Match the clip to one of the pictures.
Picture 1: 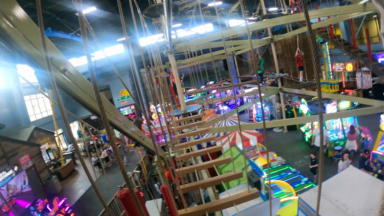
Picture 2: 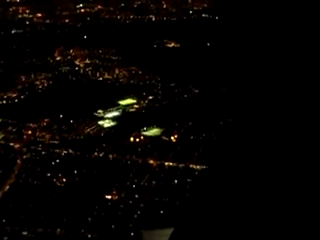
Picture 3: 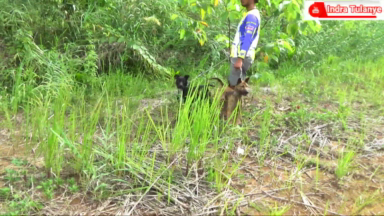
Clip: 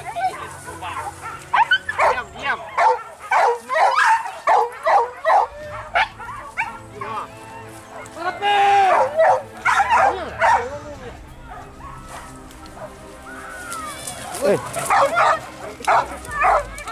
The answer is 3